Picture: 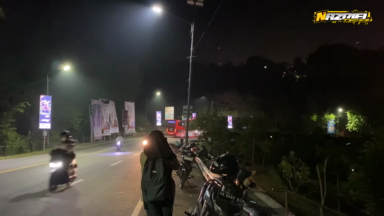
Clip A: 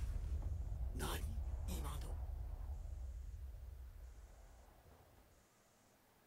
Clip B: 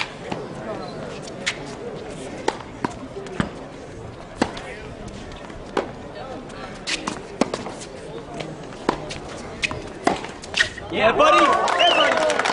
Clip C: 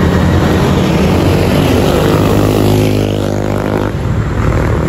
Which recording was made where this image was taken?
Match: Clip C